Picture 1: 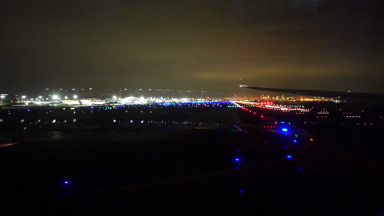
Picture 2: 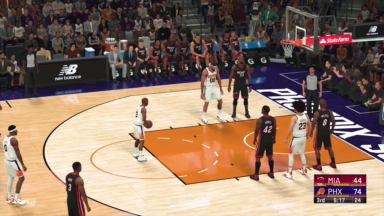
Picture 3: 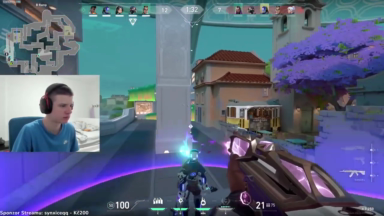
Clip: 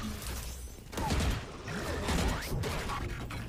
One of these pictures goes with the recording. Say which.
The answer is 3